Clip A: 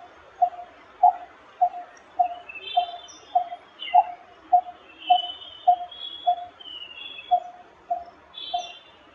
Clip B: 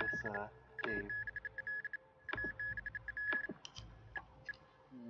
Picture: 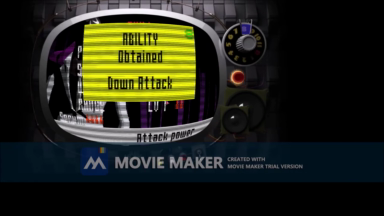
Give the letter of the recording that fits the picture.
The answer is B